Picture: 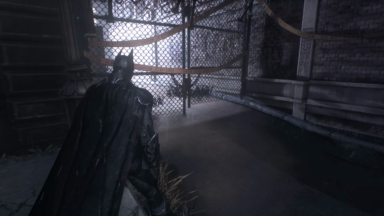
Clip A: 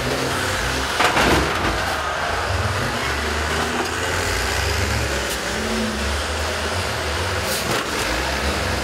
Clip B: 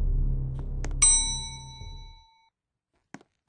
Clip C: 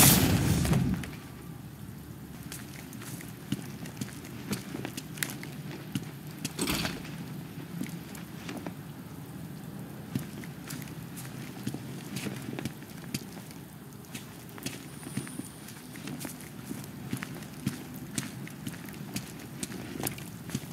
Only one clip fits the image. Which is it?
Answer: C